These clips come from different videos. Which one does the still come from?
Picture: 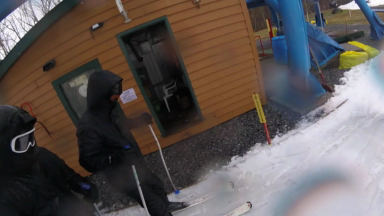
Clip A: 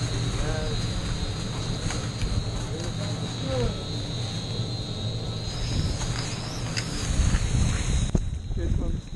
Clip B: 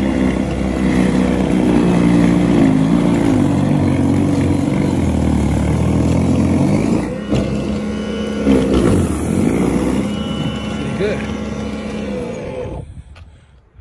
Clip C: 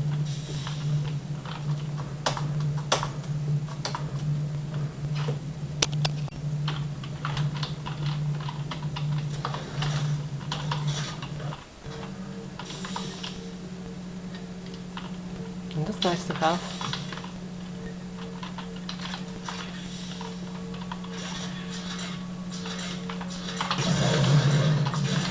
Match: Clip A